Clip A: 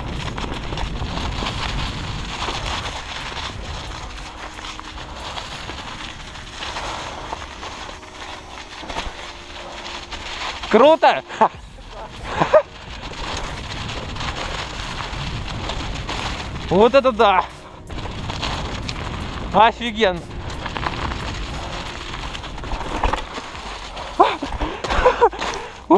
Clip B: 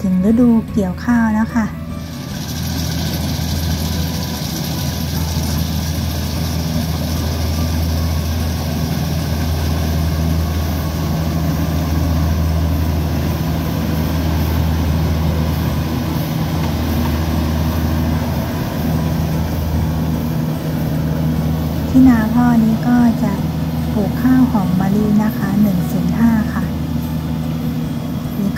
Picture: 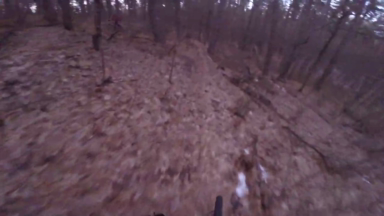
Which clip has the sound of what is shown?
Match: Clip A